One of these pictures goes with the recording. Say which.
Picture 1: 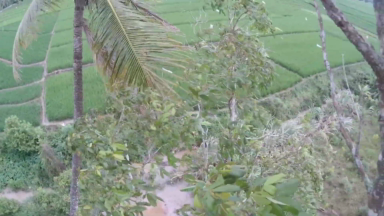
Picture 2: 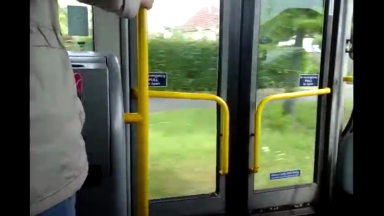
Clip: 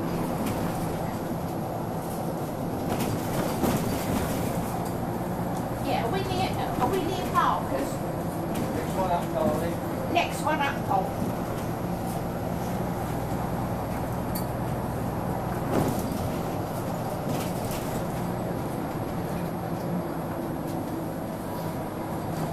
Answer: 2